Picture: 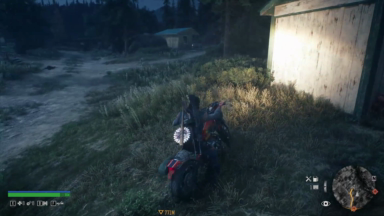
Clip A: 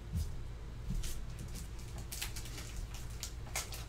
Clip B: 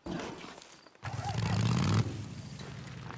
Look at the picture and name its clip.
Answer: B